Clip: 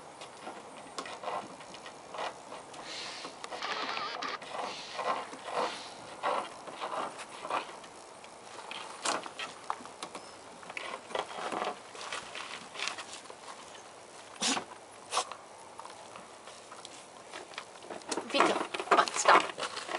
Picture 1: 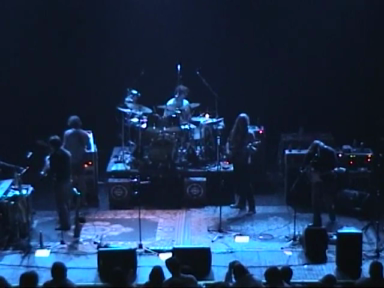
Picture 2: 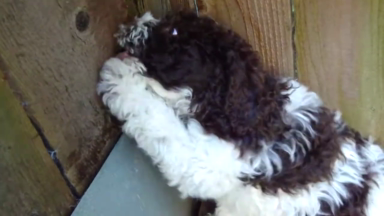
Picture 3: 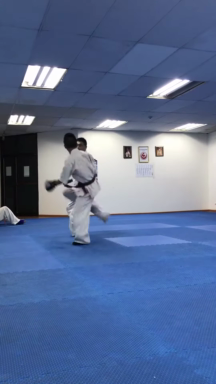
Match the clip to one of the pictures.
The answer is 2